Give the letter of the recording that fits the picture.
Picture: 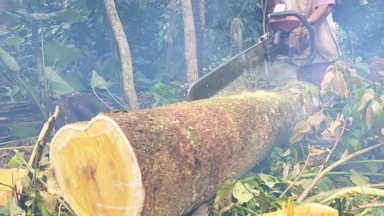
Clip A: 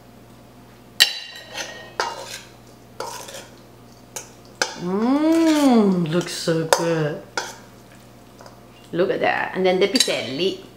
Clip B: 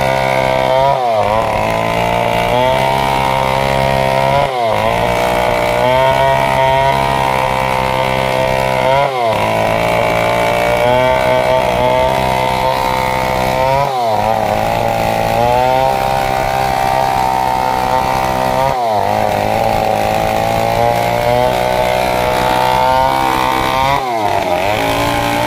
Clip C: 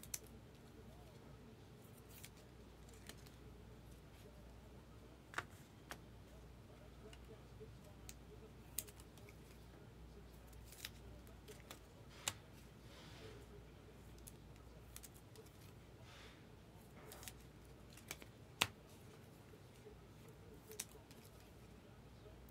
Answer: B